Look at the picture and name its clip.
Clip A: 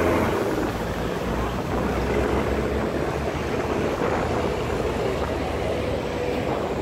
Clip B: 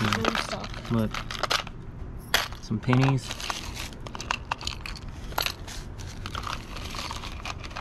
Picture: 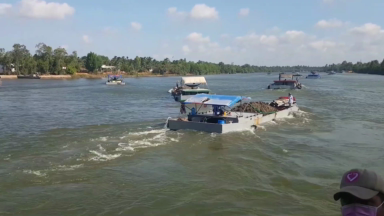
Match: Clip A